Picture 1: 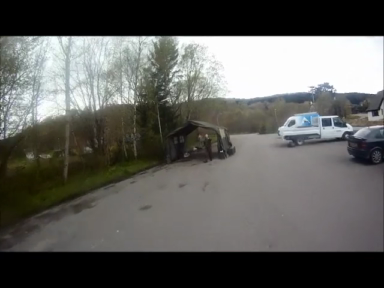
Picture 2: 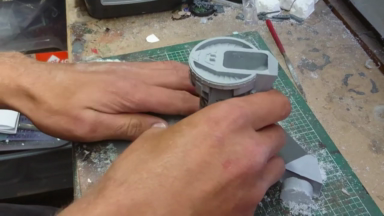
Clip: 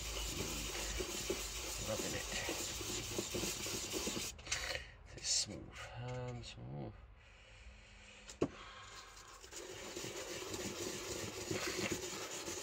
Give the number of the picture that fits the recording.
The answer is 2